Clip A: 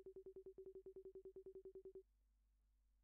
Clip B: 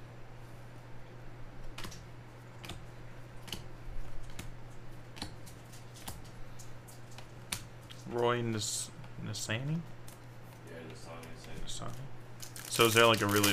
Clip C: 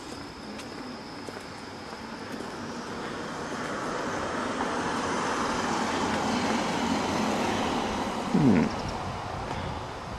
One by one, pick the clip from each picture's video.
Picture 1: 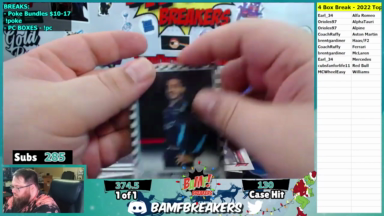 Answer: B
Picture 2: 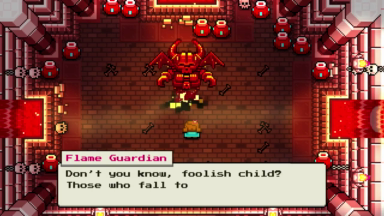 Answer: A